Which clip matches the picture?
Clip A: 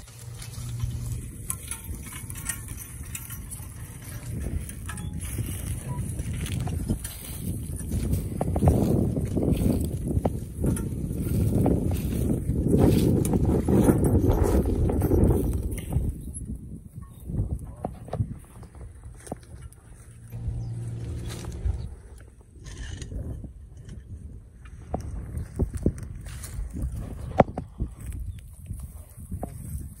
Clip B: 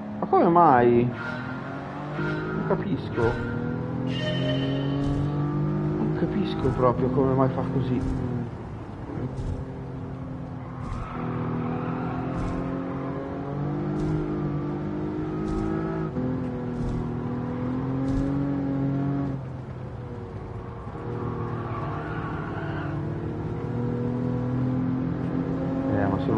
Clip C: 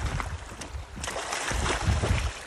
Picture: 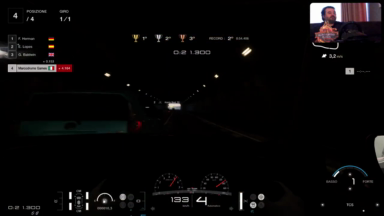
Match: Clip B